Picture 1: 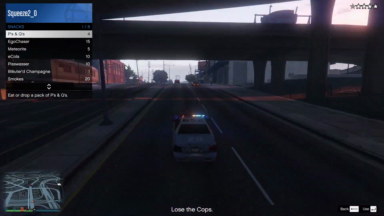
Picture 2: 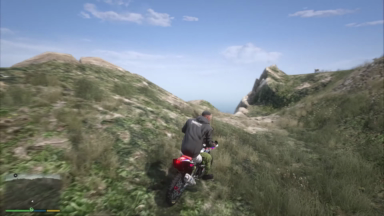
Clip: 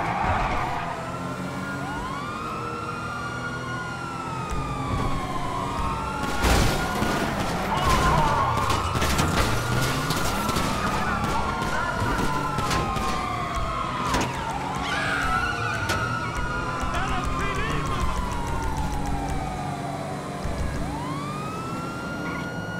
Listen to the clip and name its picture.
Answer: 1